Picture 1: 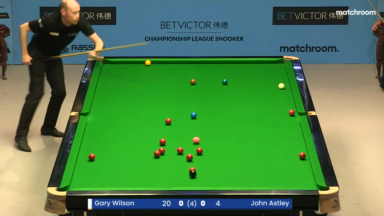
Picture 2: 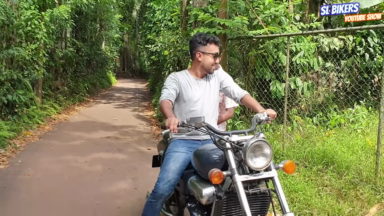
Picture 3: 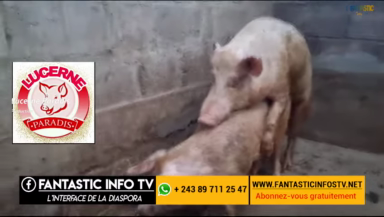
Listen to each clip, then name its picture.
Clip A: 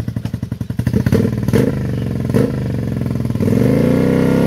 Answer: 2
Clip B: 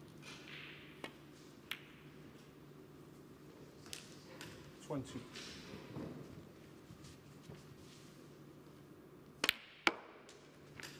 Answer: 1